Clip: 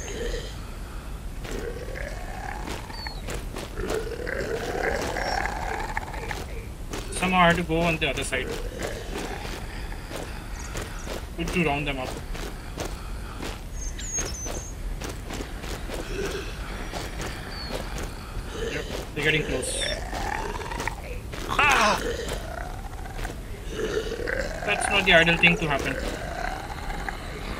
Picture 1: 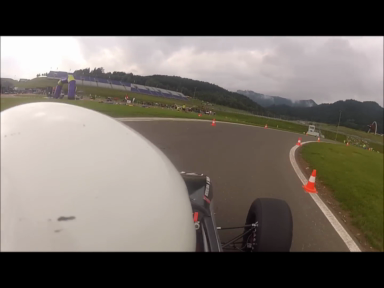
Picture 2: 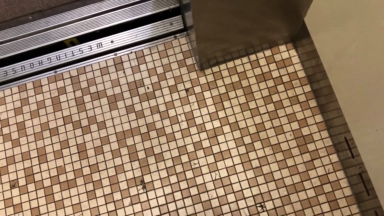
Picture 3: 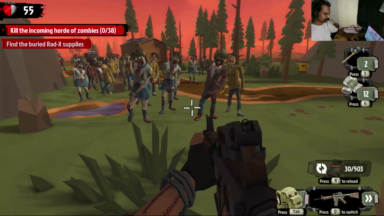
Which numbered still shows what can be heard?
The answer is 3